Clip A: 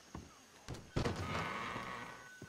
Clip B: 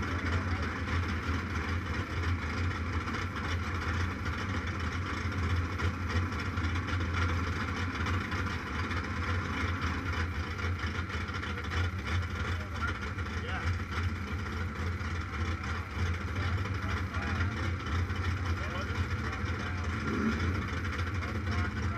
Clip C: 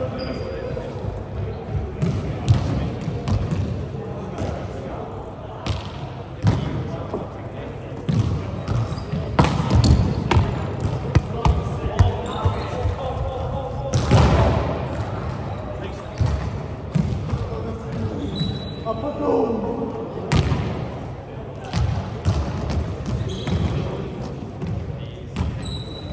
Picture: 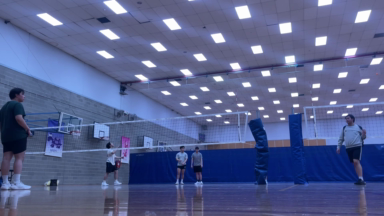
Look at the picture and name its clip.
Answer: C